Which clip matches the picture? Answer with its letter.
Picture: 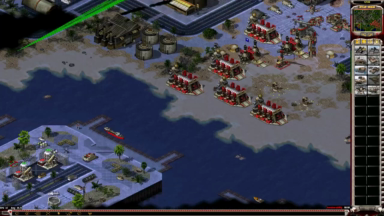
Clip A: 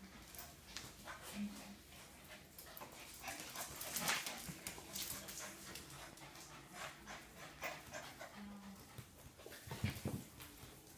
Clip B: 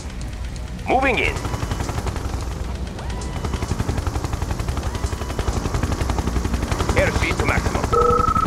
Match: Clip B